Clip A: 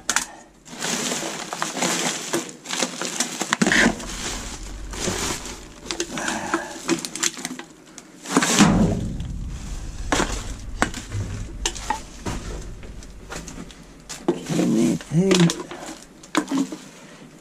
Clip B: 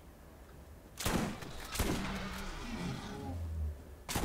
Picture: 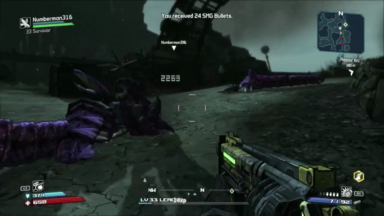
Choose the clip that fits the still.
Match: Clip B